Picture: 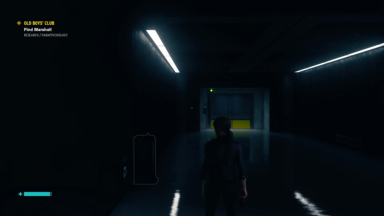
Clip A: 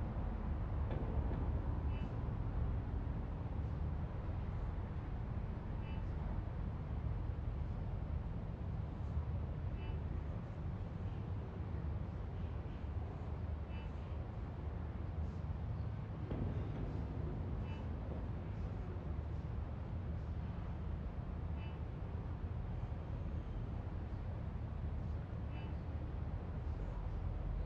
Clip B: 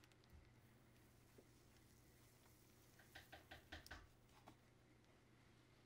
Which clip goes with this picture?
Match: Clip A